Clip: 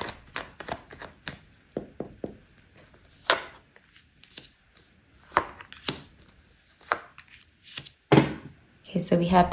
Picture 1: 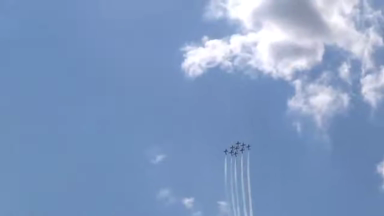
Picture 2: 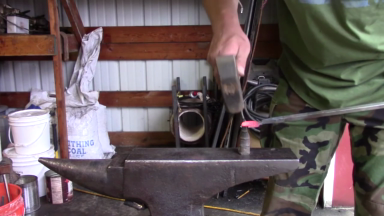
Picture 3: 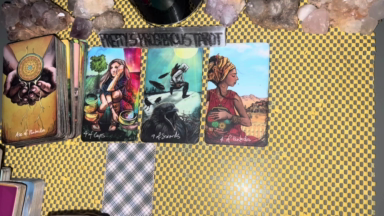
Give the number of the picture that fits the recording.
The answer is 3